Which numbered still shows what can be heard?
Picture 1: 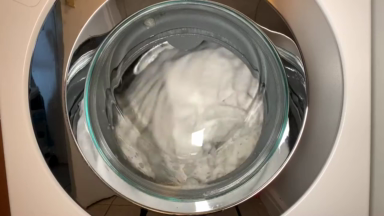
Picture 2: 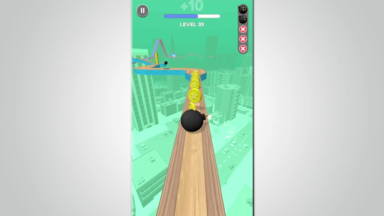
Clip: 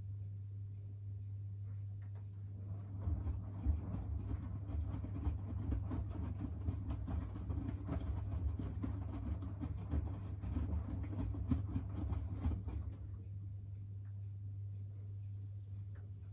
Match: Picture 1